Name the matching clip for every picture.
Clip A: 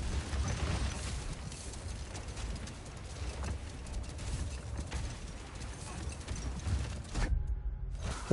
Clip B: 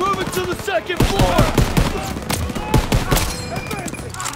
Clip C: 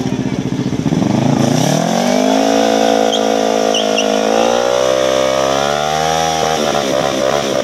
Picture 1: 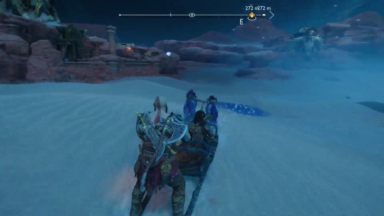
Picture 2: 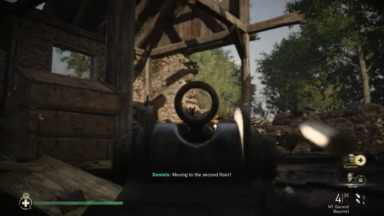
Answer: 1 A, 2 B